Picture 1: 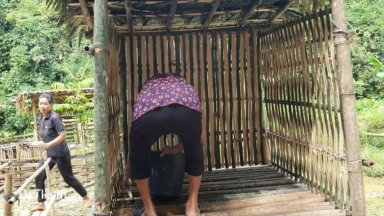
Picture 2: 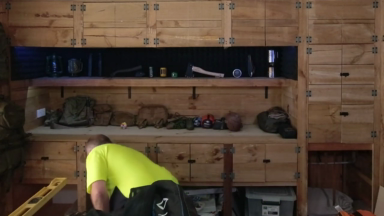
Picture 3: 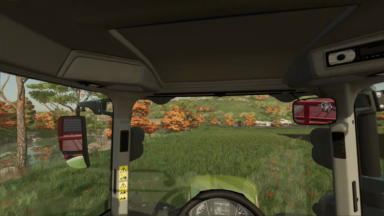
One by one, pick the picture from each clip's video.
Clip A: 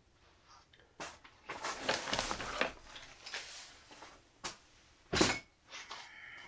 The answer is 2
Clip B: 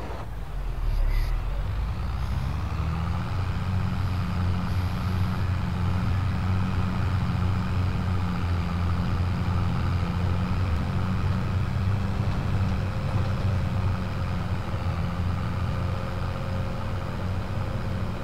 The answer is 3